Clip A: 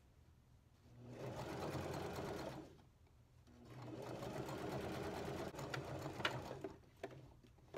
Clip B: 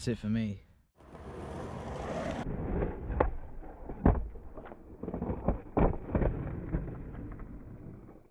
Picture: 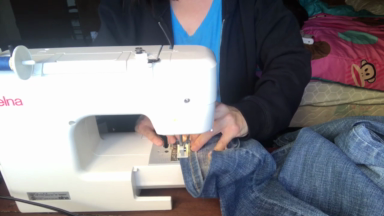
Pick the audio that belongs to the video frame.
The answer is A